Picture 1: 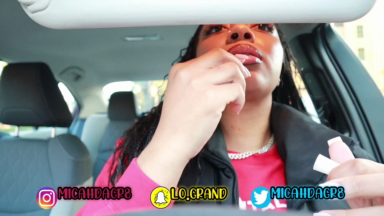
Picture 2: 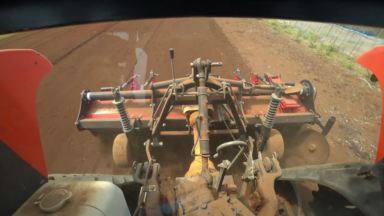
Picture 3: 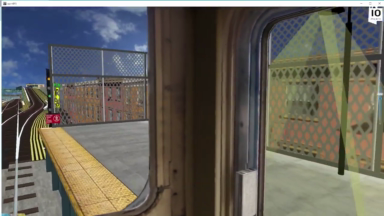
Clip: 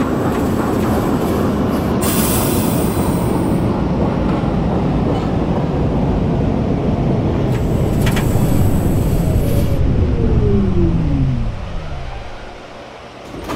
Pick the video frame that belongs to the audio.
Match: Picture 3